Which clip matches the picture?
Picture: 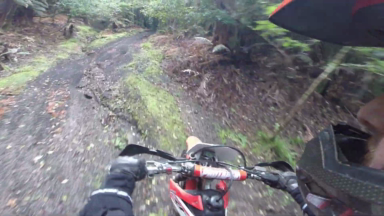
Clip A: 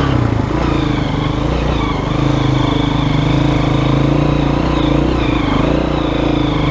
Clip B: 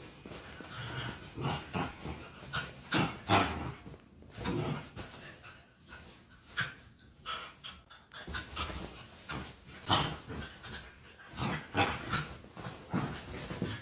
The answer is A